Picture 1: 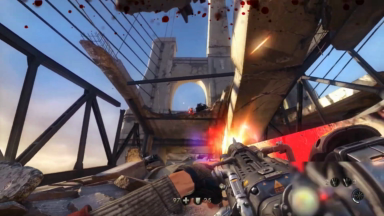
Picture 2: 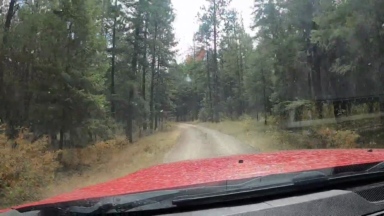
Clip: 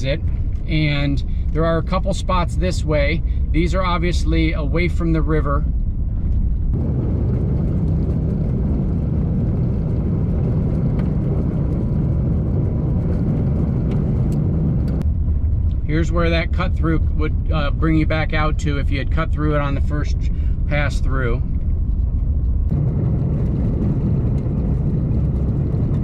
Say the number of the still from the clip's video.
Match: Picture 2